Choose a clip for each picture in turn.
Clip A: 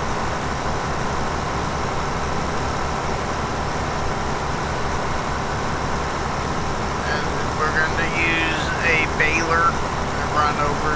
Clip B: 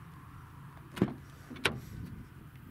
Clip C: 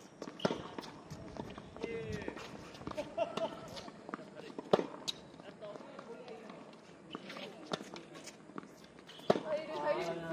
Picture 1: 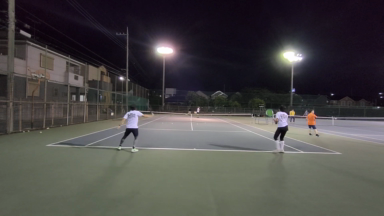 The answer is C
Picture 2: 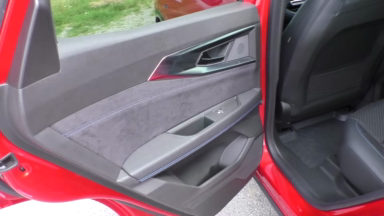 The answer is B